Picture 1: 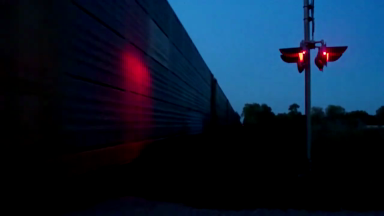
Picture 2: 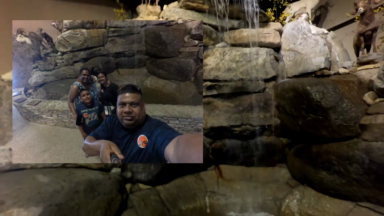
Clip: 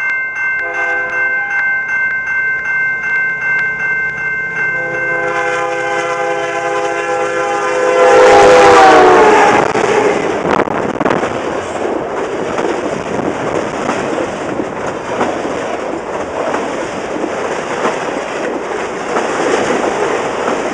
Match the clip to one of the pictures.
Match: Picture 1